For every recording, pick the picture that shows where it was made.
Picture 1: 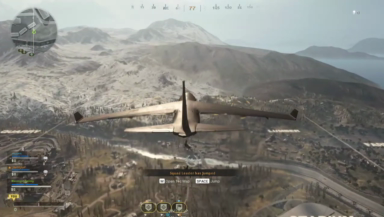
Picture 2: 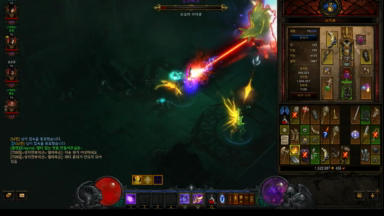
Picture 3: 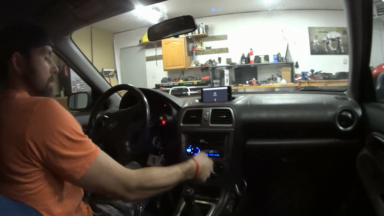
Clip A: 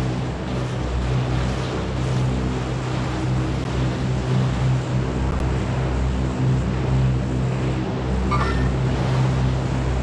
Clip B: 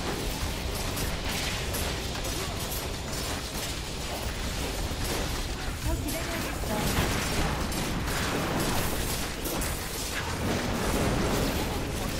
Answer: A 1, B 2